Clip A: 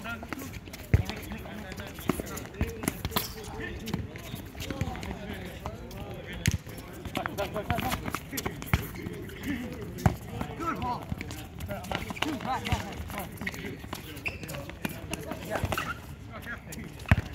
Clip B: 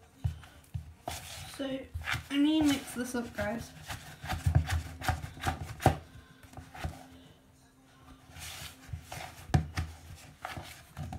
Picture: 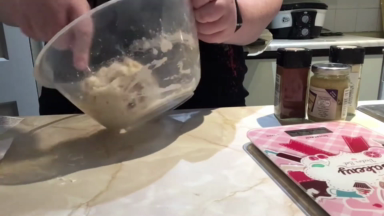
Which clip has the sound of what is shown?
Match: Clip B